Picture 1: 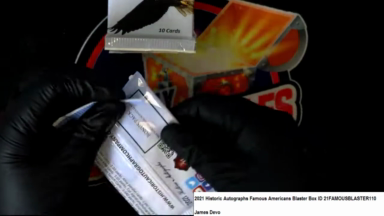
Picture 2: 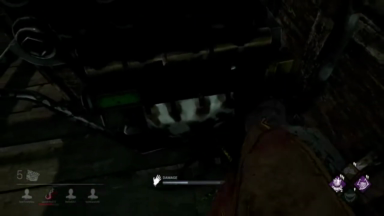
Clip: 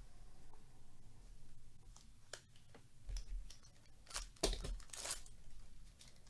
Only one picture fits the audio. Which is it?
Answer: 1